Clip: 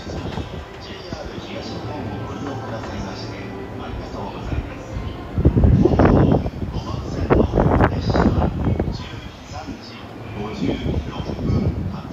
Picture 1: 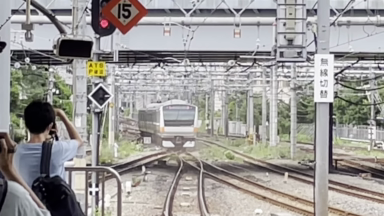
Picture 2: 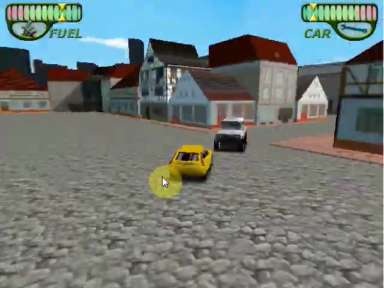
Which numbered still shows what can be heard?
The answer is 1